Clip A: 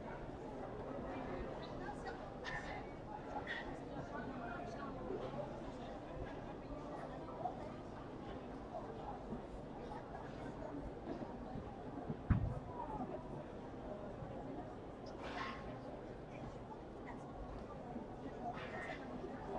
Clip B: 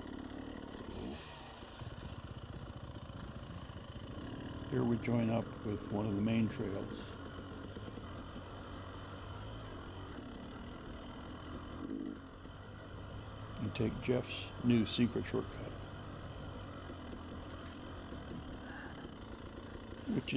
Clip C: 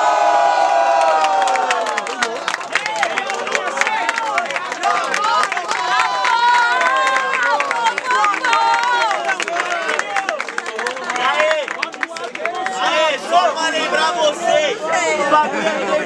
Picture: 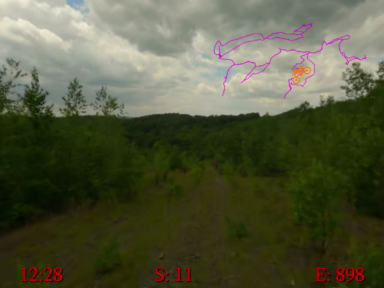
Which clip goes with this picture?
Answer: B